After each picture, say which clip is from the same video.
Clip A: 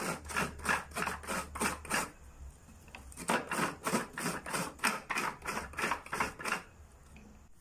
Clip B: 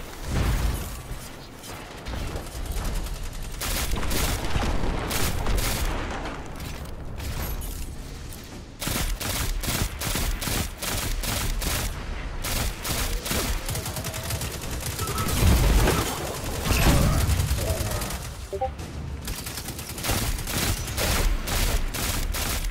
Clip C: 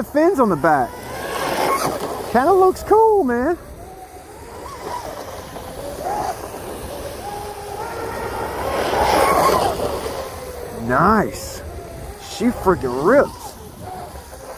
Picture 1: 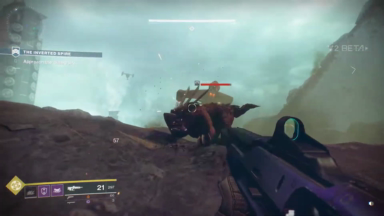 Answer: B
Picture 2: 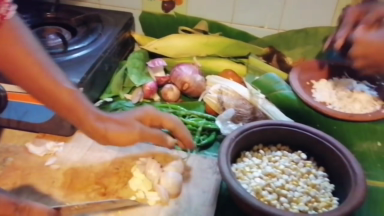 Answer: A